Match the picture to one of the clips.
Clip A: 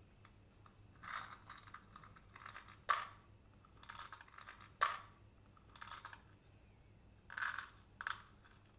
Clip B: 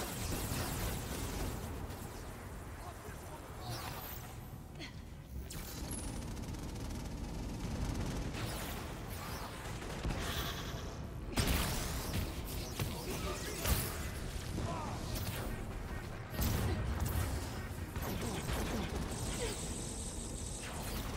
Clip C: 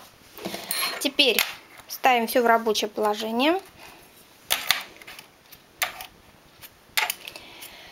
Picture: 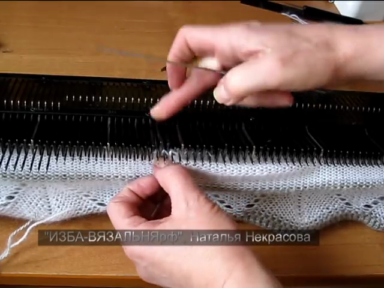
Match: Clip C